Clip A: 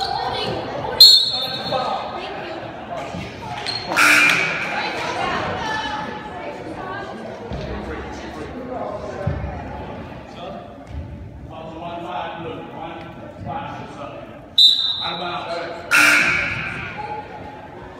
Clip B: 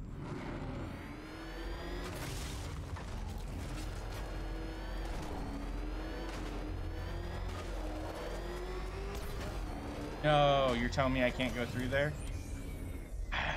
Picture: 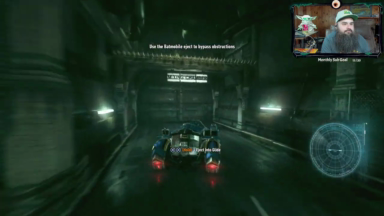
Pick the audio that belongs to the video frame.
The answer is B